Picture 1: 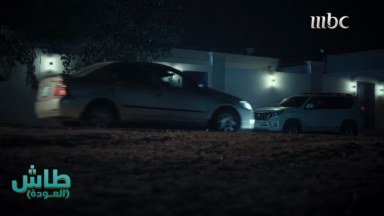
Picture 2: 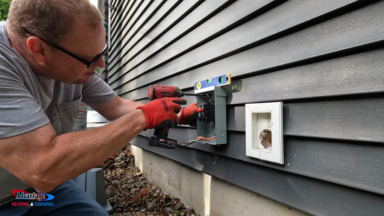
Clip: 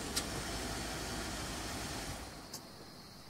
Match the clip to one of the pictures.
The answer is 1